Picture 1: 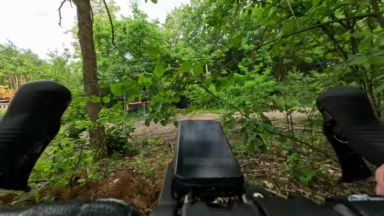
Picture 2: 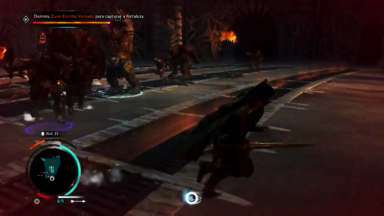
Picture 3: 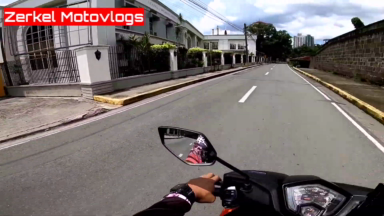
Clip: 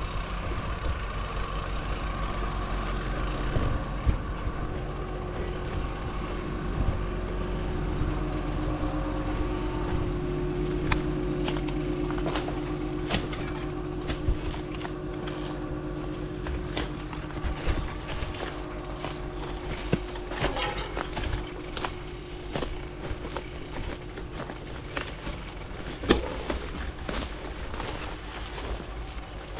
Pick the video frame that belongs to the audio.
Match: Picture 1